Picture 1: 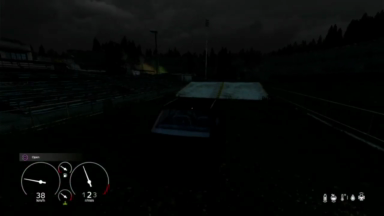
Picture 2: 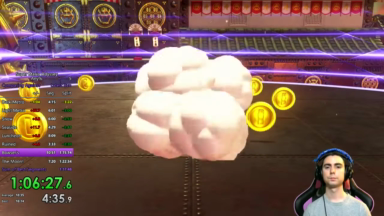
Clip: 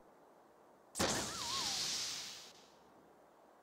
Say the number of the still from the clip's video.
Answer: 2